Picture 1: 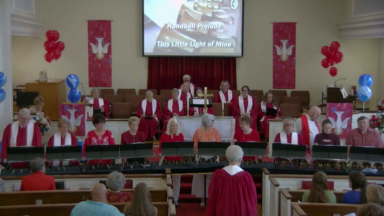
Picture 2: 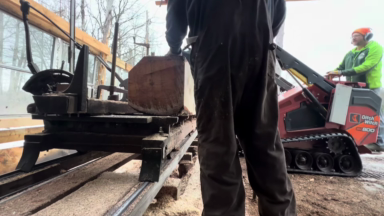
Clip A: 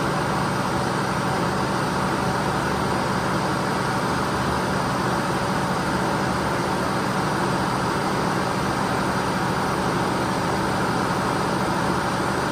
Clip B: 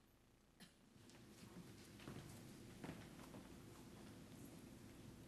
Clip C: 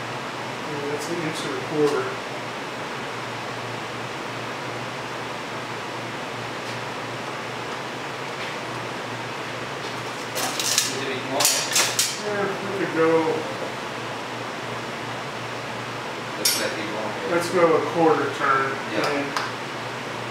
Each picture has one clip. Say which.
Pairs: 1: B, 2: A